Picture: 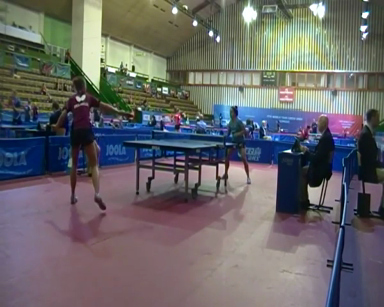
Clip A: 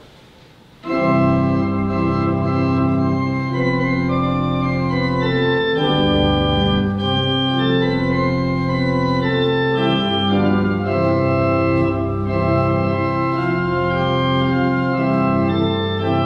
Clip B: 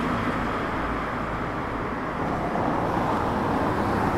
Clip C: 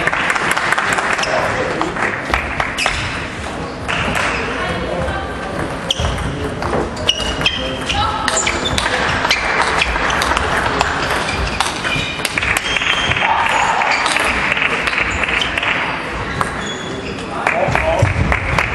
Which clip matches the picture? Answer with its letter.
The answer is C